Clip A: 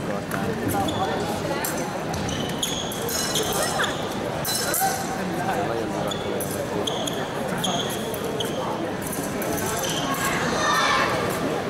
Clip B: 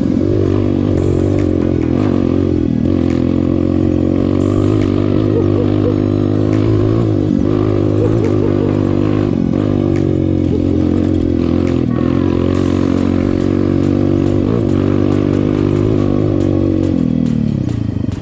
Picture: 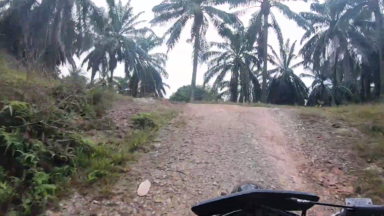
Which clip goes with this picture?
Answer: B